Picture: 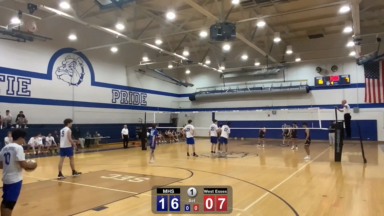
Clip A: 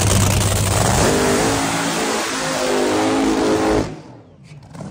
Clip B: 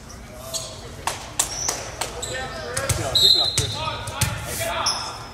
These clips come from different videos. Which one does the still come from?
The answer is B